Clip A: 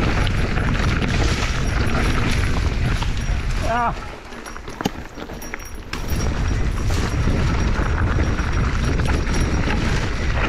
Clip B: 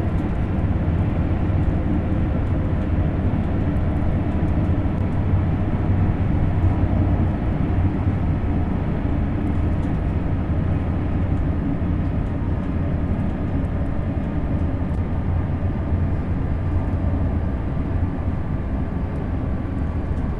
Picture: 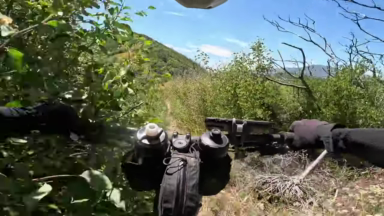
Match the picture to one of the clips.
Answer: A